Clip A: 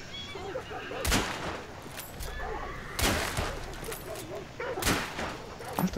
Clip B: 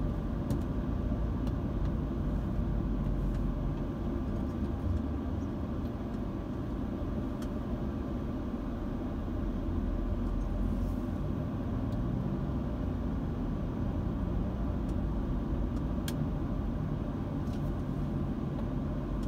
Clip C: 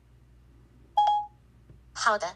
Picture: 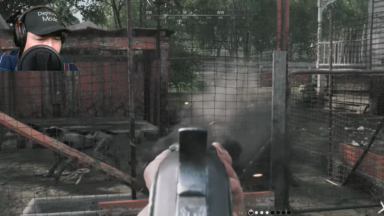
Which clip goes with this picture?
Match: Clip A